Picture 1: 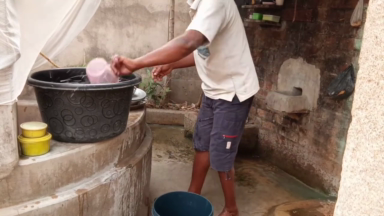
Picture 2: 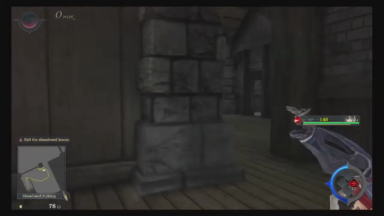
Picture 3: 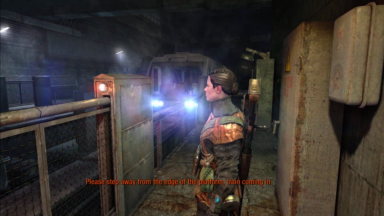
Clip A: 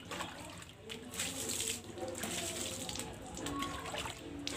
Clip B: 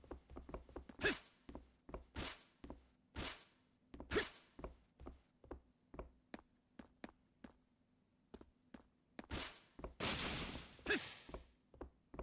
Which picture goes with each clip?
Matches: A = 1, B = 2